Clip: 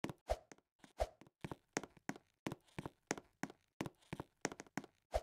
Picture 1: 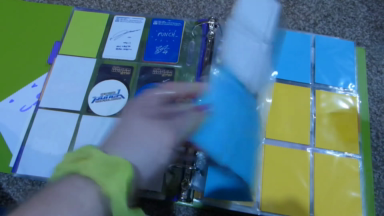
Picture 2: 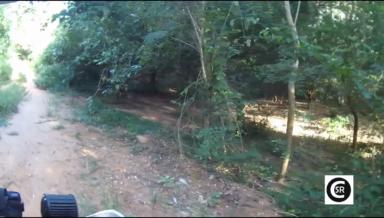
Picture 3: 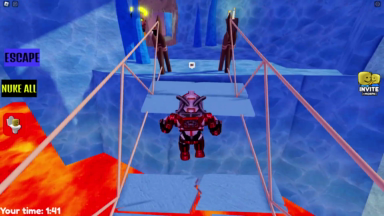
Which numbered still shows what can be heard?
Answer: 3